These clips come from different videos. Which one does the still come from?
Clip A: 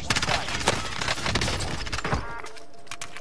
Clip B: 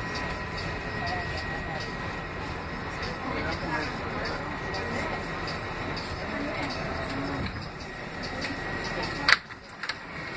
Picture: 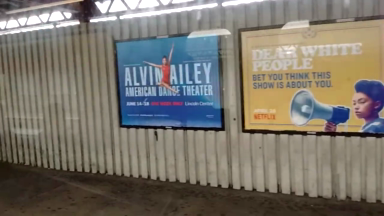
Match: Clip B